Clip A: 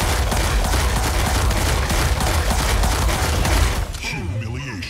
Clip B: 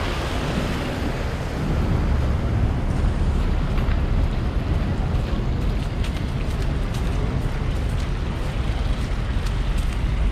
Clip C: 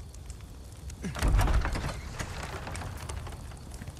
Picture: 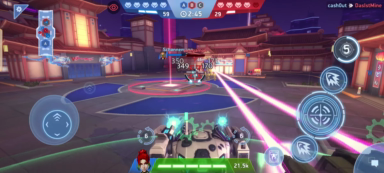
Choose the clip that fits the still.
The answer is A